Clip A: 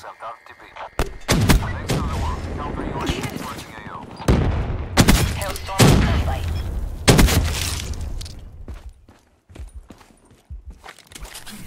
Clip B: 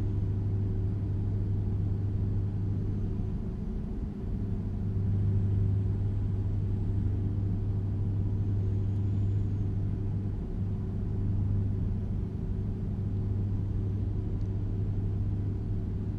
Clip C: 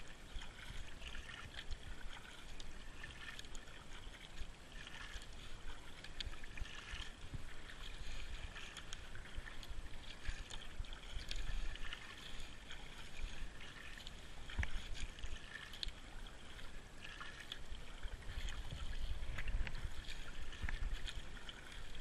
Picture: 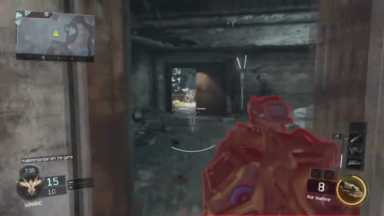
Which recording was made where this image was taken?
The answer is A